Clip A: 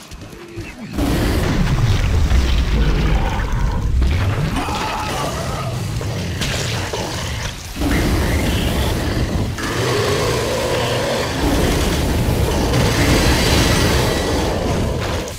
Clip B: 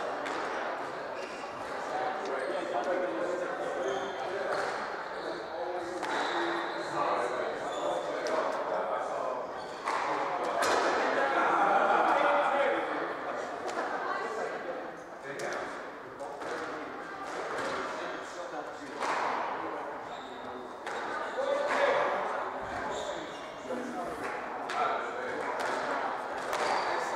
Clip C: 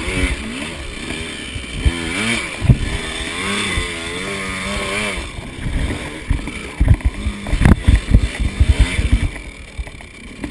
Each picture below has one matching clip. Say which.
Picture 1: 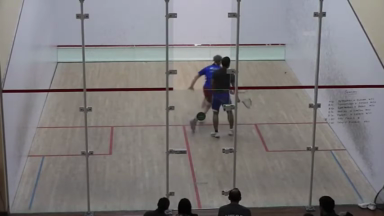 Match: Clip B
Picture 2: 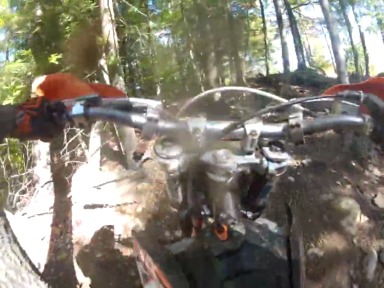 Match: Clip C